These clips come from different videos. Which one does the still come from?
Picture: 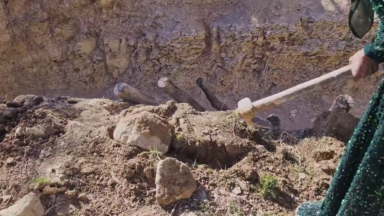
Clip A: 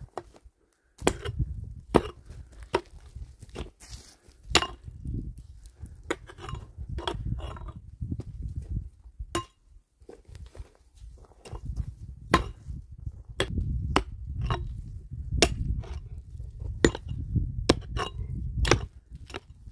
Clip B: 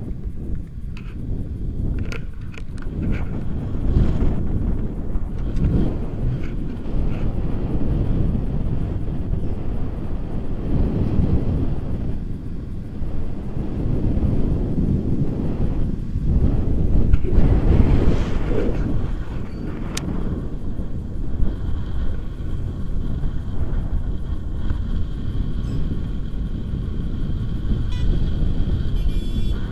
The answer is A